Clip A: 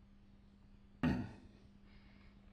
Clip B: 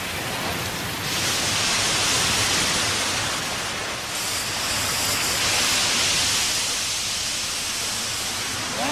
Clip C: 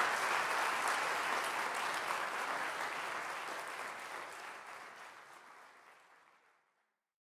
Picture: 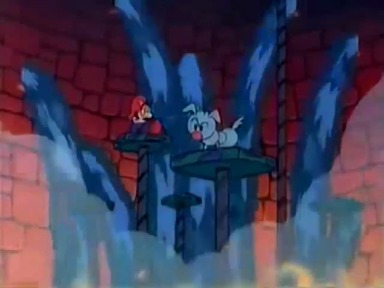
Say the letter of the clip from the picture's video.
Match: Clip B